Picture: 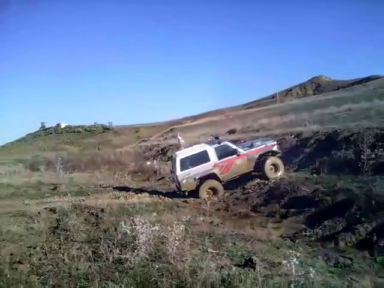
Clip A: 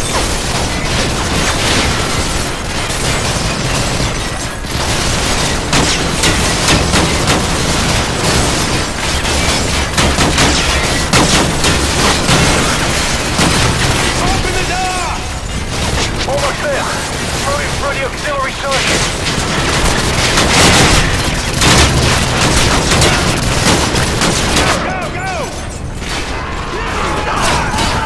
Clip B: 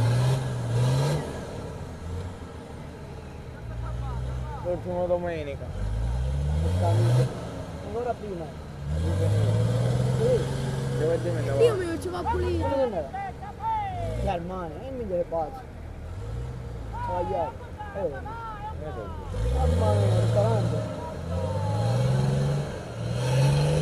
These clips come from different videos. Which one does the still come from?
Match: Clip B